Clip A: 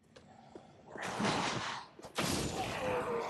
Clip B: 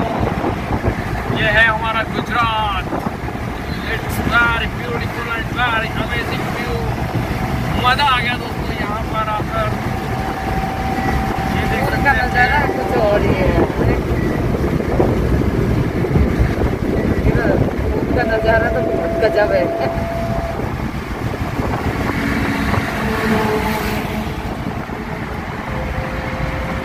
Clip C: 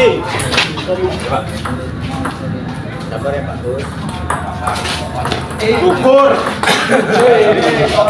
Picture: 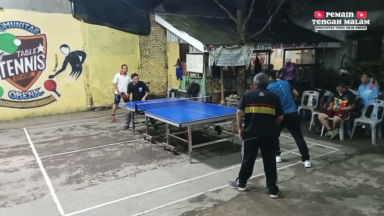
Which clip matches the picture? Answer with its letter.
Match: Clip C